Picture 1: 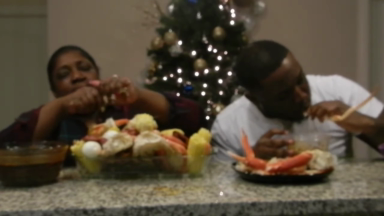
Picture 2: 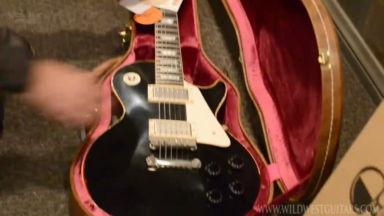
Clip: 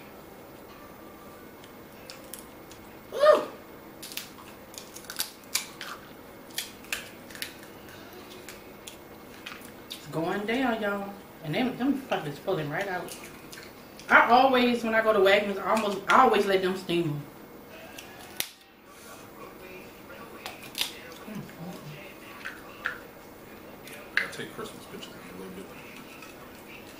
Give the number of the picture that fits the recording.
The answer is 1